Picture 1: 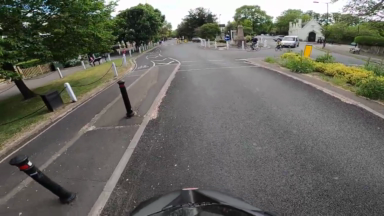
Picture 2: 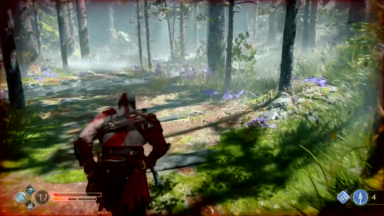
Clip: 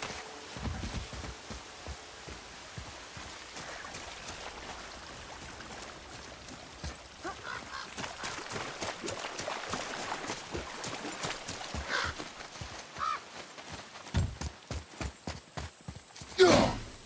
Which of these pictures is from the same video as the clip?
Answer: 2